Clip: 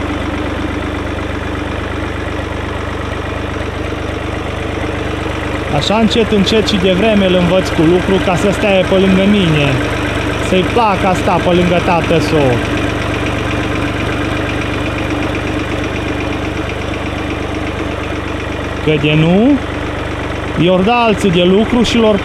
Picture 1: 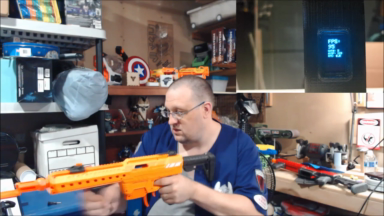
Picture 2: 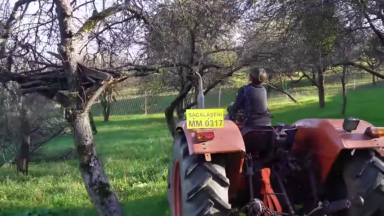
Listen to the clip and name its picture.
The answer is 2